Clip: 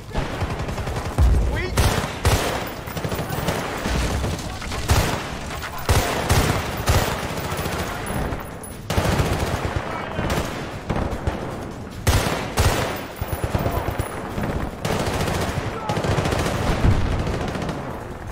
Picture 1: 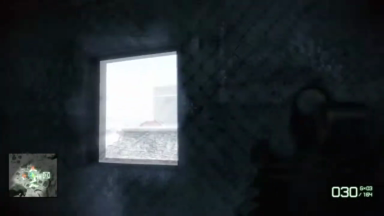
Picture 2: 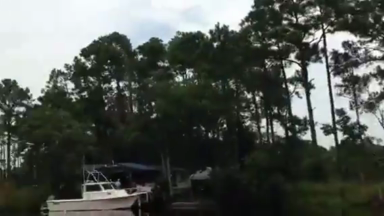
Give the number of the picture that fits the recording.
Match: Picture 1